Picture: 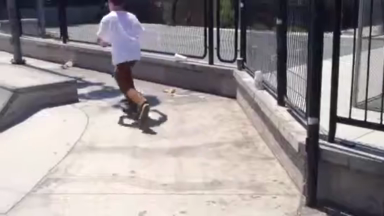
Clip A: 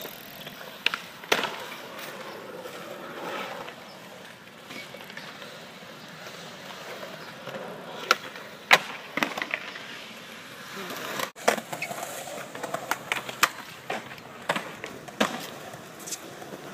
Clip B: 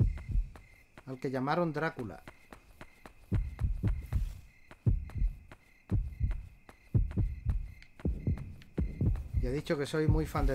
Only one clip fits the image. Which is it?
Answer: A